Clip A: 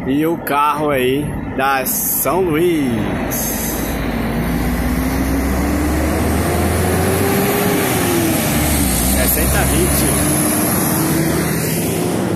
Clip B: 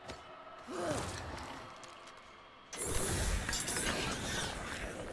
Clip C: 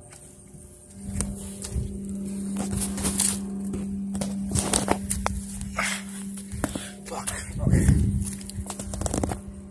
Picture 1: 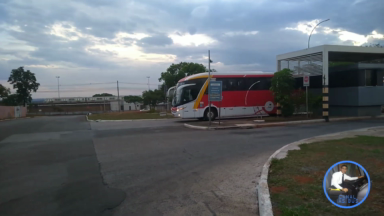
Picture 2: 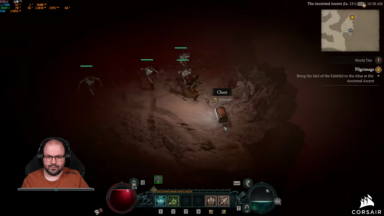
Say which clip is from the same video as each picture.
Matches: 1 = A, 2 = B